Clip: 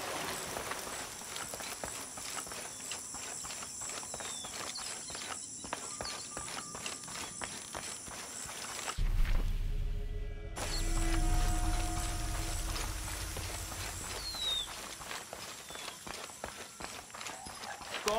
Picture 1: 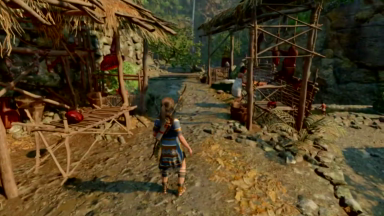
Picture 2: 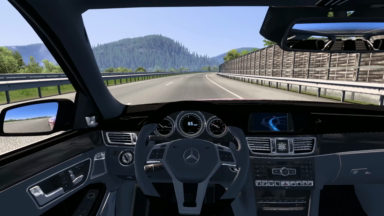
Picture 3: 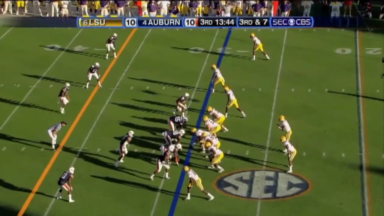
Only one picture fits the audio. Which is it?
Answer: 1